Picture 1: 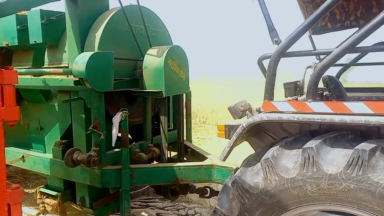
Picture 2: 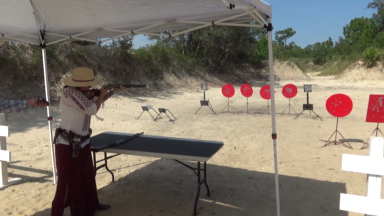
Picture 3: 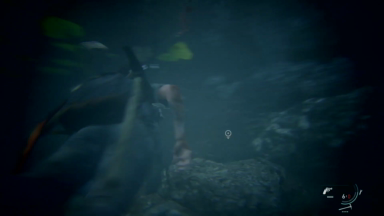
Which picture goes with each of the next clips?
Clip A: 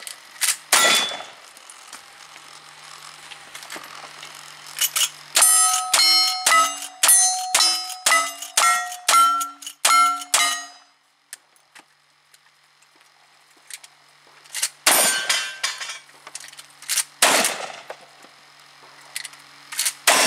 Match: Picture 2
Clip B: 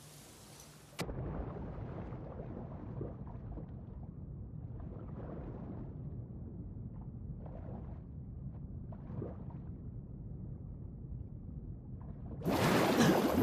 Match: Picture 3